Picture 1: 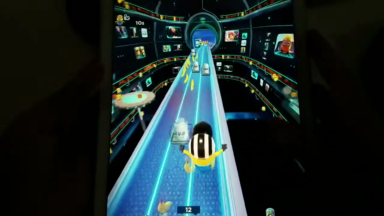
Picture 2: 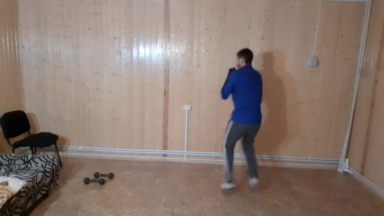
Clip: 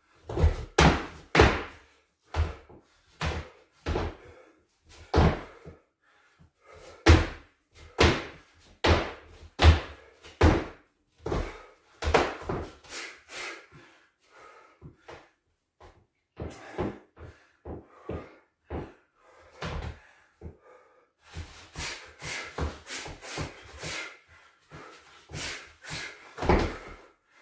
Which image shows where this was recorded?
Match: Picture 2